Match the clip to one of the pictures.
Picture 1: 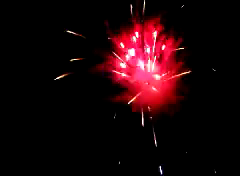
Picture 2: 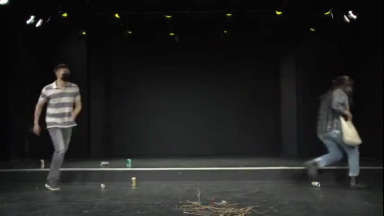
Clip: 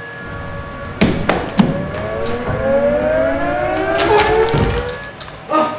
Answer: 2